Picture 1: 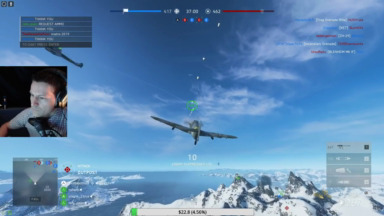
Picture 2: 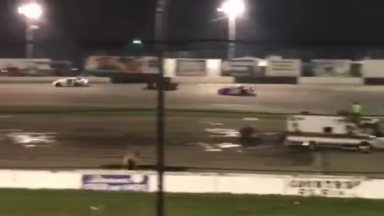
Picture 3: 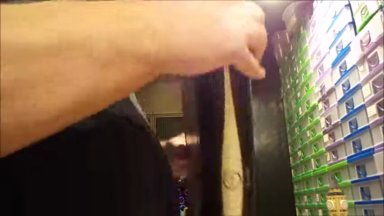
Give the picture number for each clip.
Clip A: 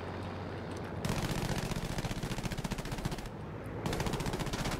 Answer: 1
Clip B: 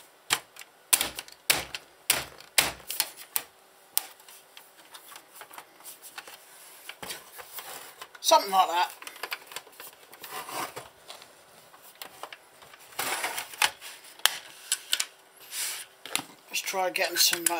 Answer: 3